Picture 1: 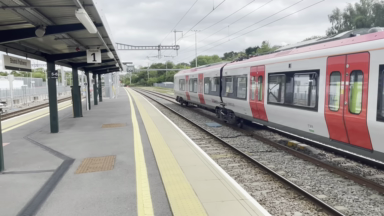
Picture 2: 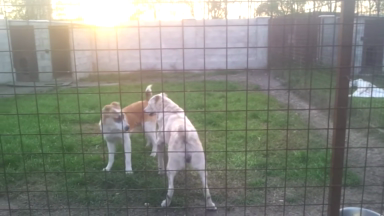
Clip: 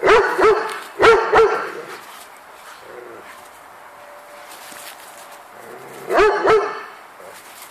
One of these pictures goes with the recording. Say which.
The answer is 2